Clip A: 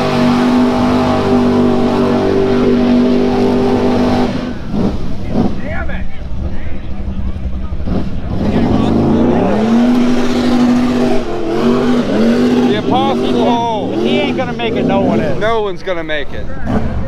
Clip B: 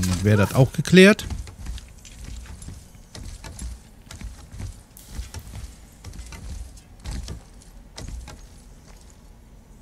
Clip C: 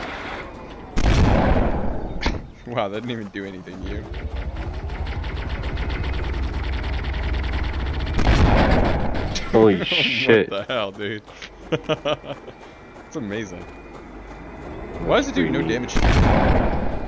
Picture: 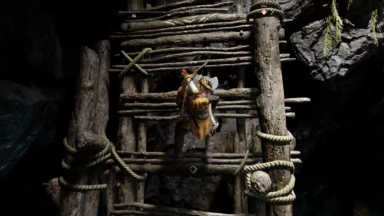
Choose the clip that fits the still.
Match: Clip B